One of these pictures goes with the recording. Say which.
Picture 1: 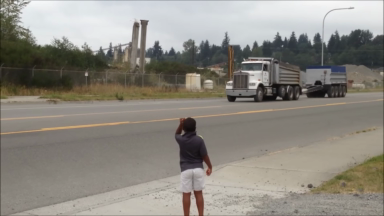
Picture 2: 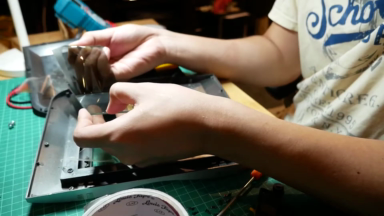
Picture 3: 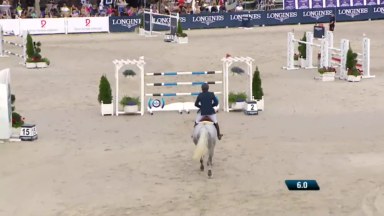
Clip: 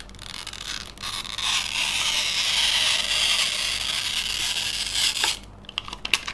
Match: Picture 2